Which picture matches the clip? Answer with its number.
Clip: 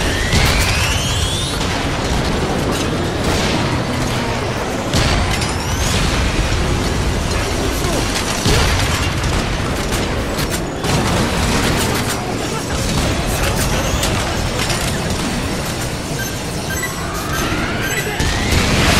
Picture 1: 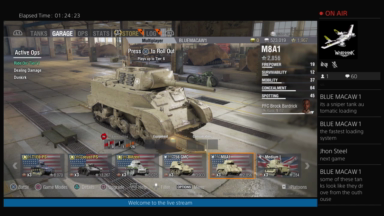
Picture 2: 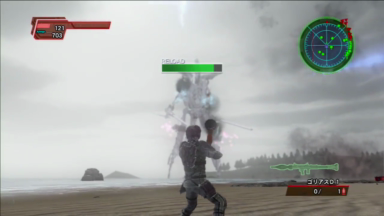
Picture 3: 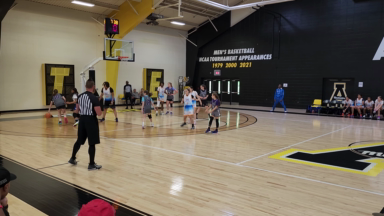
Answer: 2